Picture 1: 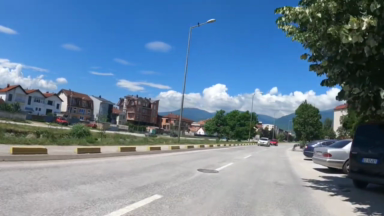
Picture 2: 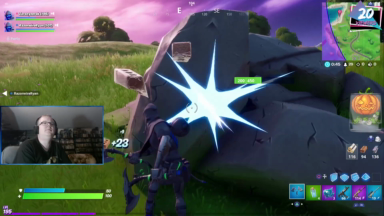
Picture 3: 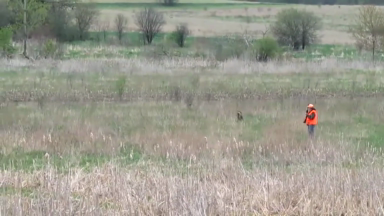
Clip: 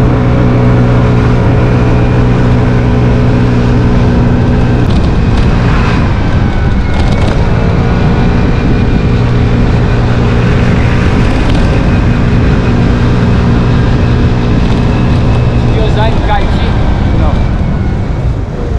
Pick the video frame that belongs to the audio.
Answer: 1